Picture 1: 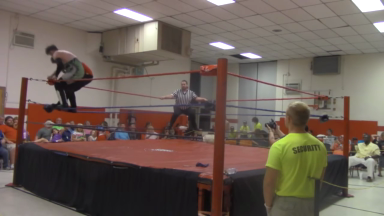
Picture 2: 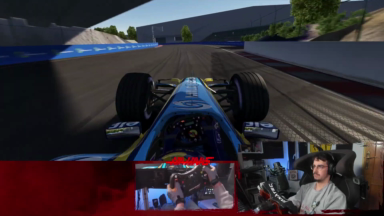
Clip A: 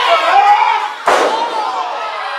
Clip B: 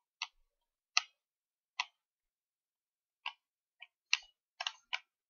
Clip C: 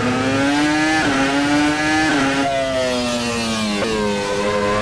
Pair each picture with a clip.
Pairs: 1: A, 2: C